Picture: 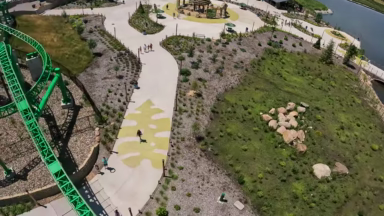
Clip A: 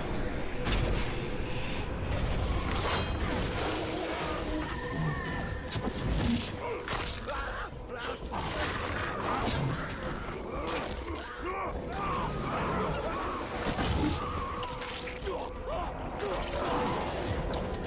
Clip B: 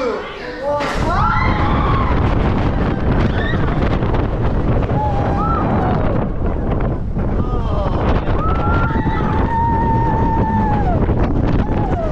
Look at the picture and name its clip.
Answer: B